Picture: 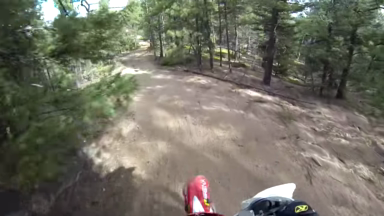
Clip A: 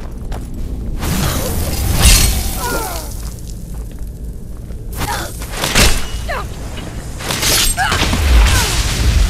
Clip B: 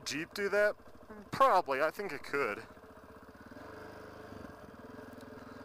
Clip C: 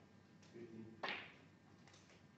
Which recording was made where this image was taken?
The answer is B